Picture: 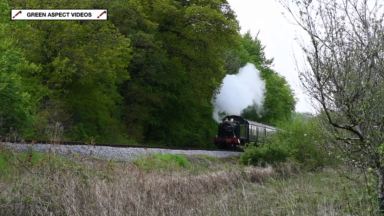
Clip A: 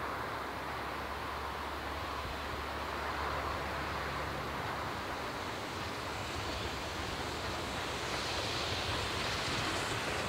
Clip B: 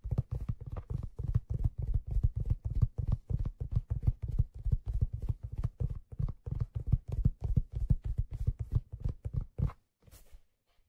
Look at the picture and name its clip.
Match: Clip A